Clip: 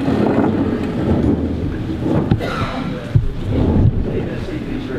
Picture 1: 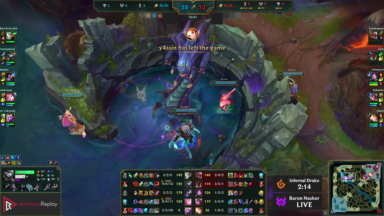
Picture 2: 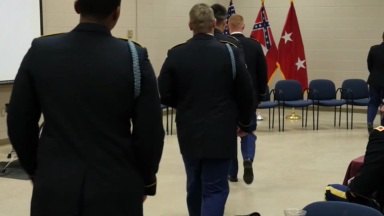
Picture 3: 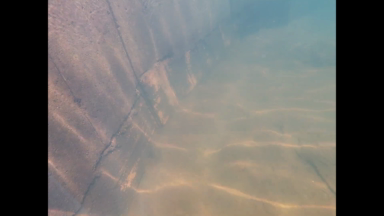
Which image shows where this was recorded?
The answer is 2